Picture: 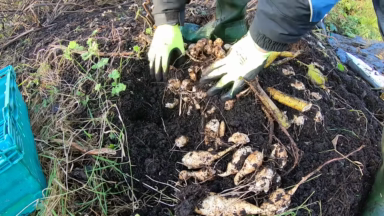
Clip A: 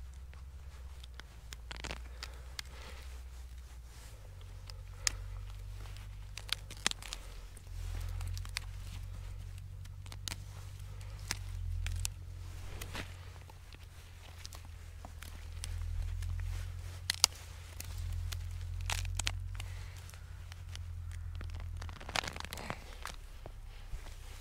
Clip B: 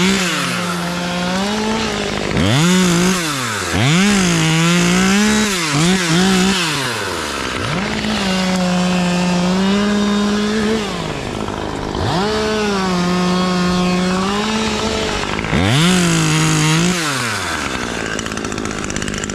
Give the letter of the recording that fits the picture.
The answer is A